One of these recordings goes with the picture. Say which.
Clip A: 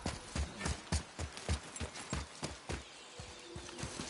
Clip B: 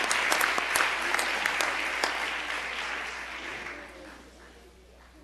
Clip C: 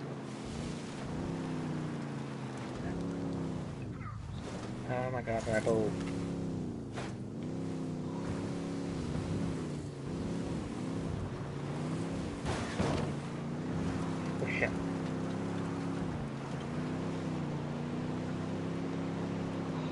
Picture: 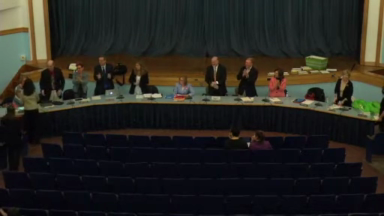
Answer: B